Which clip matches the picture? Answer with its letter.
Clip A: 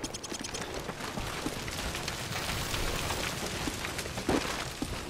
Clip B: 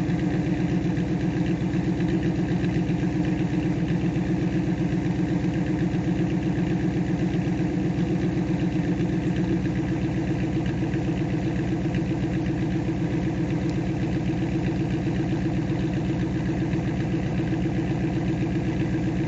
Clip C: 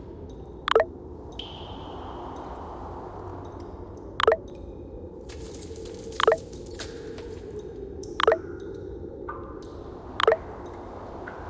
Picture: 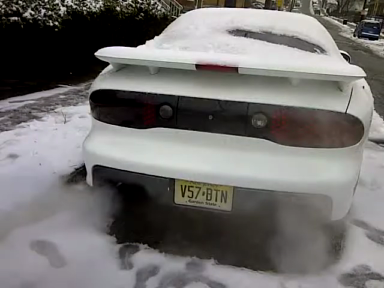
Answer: B